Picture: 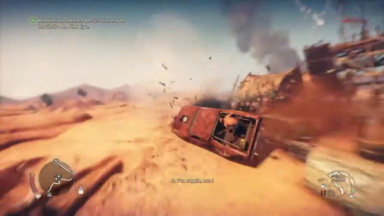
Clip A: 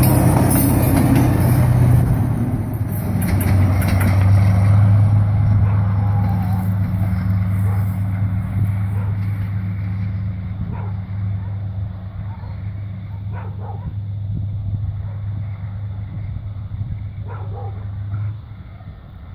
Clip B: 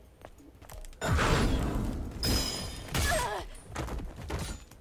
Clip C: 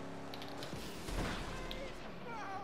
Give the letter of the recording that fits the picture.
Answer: C